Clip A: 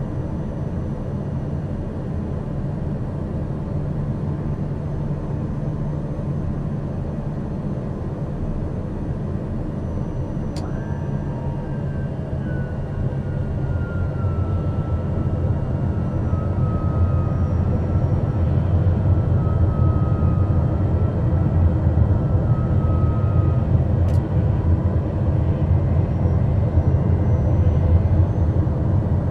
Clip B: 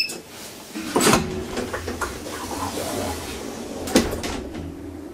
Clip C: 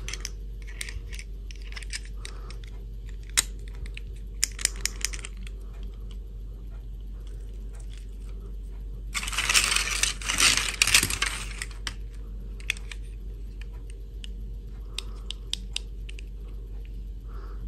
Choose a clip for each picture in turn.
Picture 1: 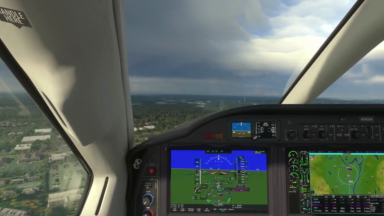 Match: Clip A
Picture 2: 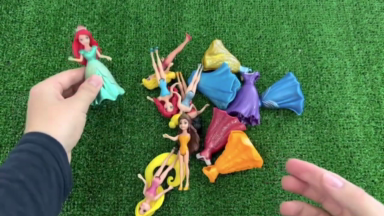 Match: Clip C